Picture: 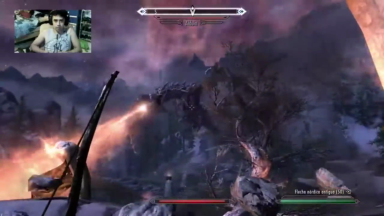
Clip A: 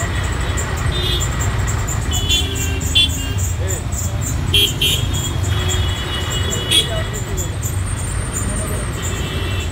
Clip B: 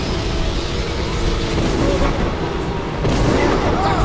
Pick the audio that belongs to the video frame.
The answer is B